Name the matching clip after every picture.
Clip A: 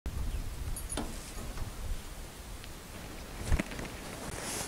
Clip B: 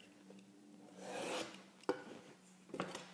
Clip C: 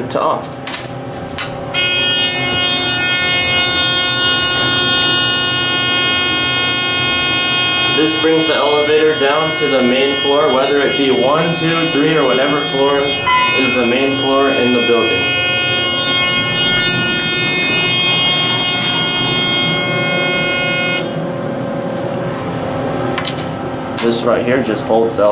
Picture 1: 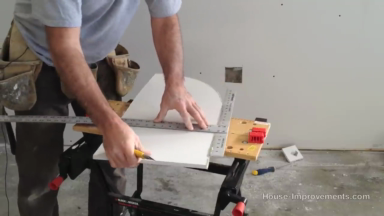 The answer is B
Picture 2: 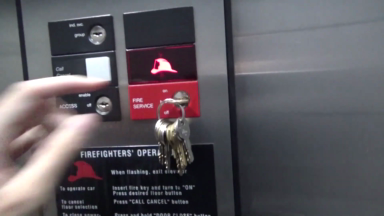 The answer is C